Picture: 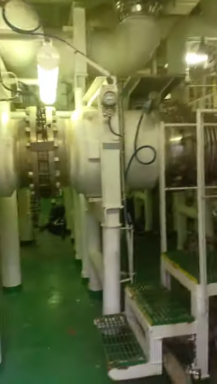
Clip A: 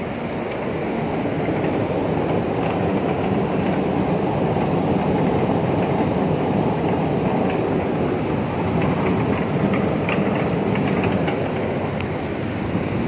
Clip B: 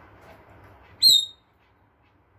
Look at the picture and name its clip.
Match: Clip A